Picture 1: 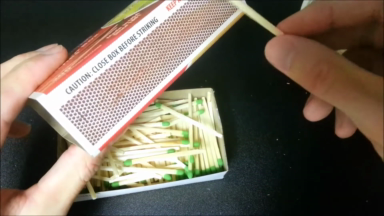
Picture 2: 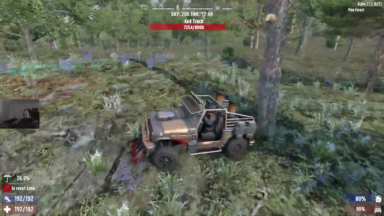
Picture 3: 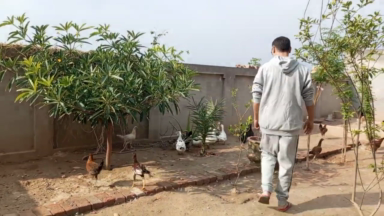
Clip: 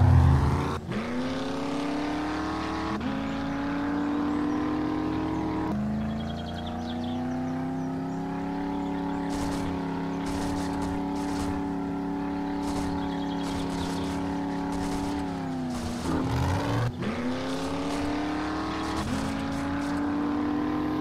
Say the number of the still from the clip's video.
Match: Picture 2